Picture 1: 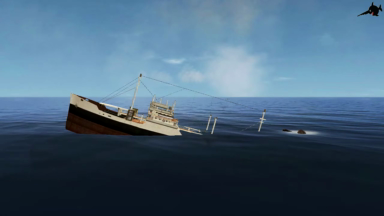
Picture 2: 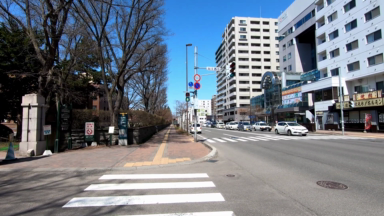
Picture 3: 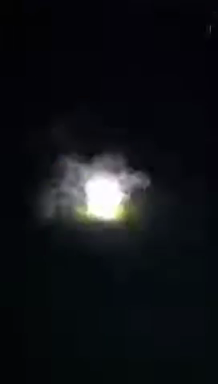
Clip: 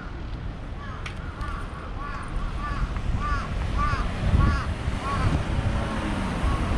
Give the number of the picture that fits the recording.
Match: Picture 2